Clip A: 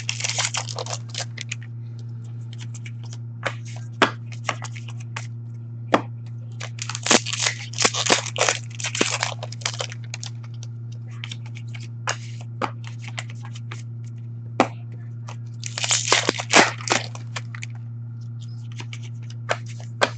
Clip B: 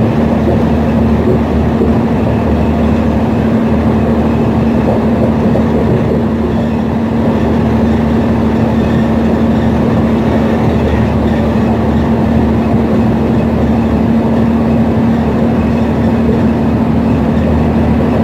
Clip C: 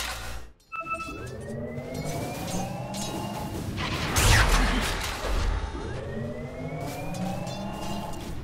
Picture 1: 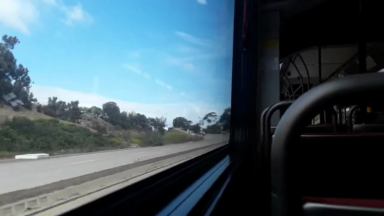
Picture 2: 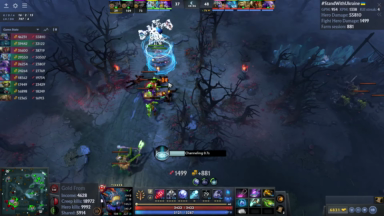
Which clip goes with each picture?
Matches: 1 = B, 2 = C